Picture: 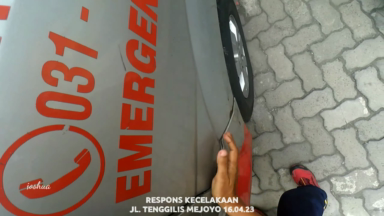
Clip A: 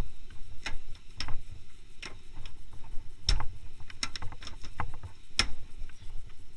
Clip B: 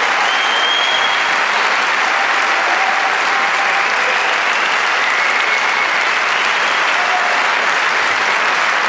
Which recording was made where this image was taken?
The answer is A